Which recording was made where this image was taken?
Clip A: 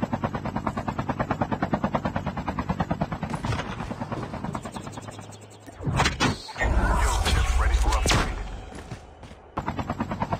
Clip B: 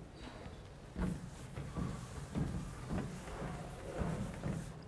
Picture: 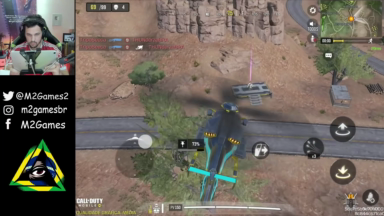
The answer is A